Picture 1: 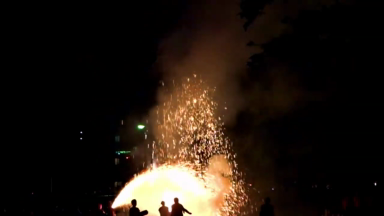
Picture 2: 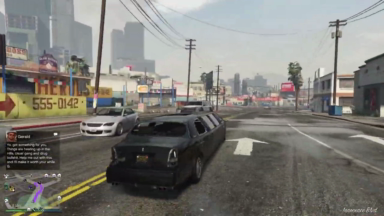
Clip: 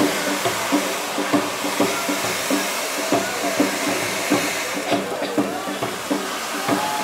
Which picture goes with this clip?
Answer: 1